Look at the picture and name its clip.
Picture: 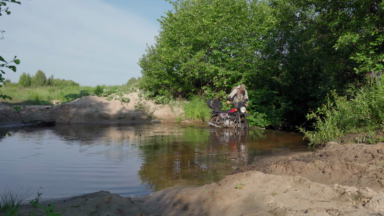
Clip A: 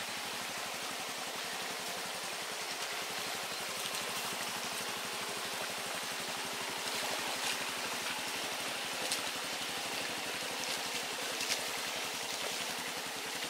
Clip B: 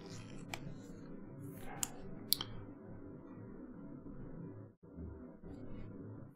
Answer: A